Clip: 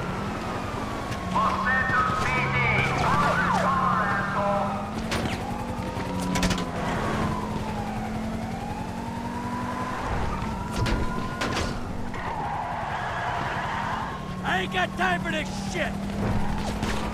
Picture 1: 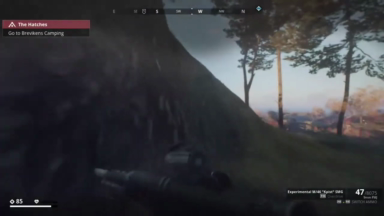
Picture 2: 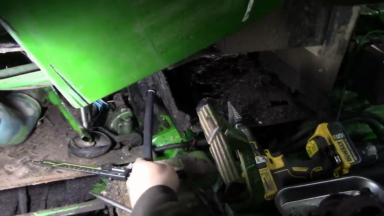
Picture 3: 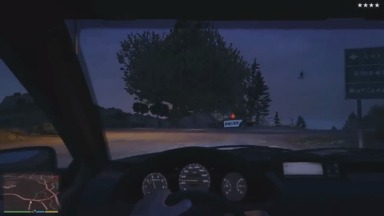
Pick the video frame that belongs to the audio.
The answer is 3